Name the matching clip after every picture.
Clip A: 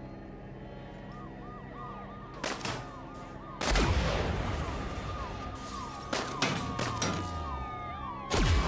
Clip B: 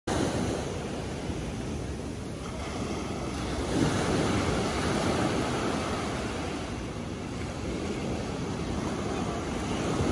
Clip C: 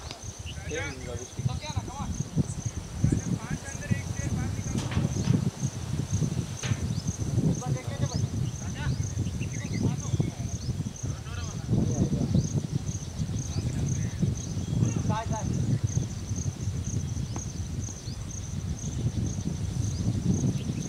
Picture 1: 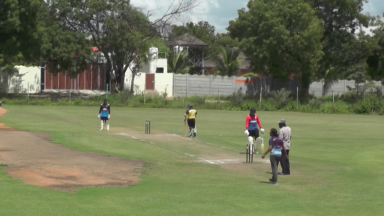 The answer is C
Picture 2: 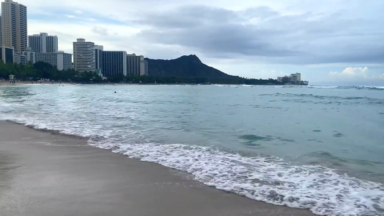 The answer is B